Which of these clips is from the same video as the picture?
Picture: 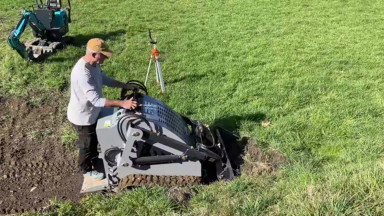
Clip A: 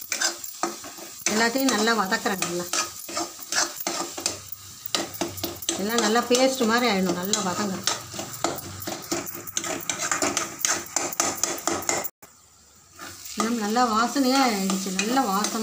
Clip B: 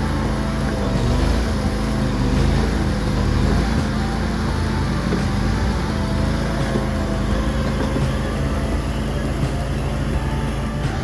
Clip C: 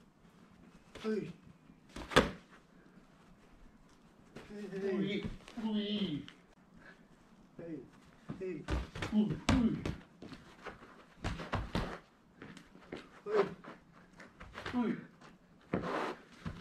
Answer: B